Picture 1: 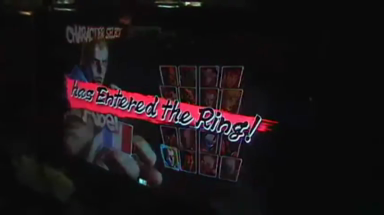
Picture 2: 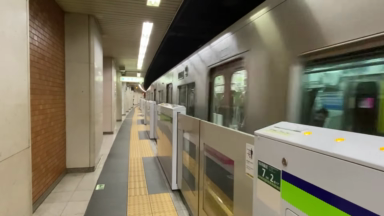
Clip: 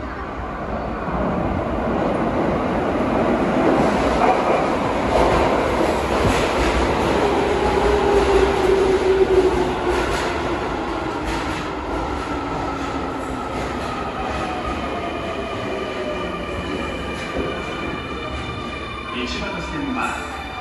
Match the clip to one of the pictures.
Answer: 2